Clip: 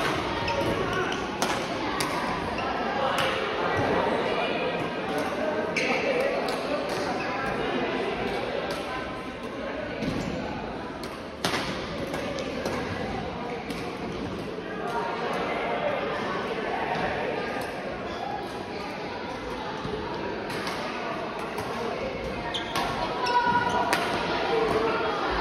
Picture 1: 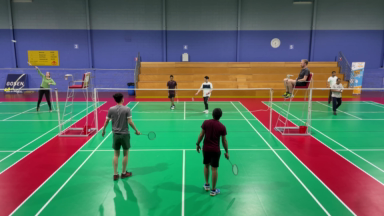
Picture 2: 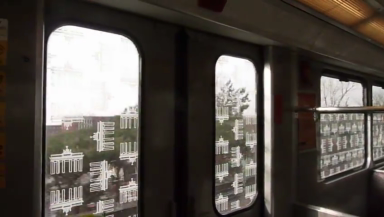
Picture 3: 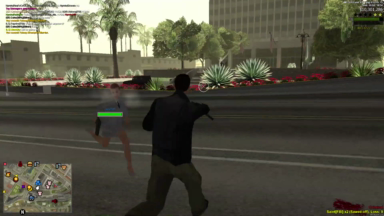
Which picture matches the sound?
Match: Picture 1